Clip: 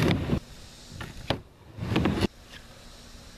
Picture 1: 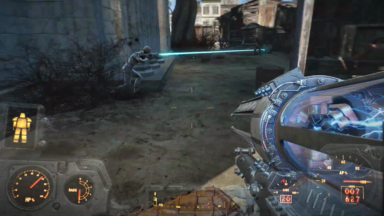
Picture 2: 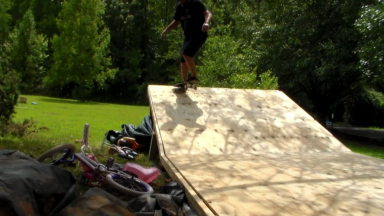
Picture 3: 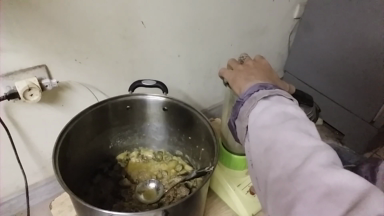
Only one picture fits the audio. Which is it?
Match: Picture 2